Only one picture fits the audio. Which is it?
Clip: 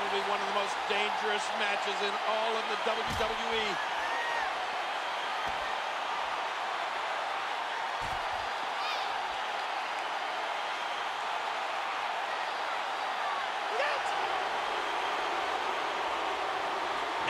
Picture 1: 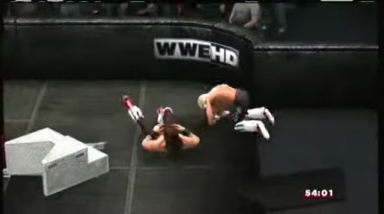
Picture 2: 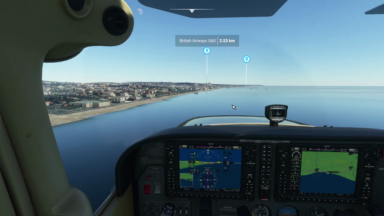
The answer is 1